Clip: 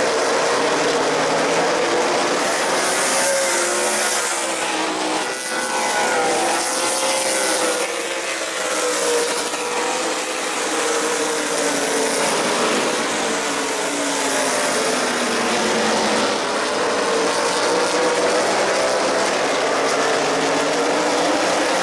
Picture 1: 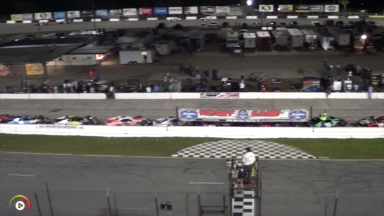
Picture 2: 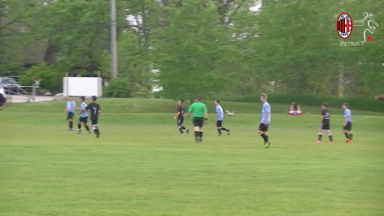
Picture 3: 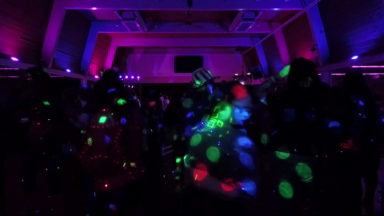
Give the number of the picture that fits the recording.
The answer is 1